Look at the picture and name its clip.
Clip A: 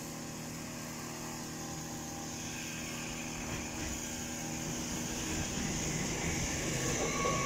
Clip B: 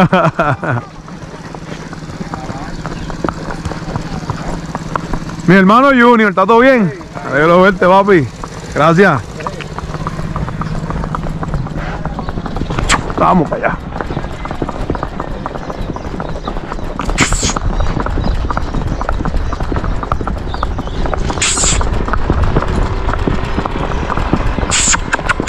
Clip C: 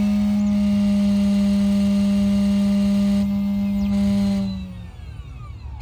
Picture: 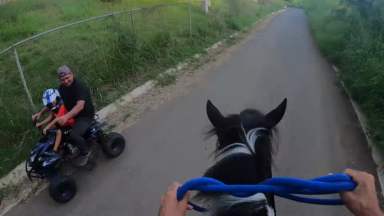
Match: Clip B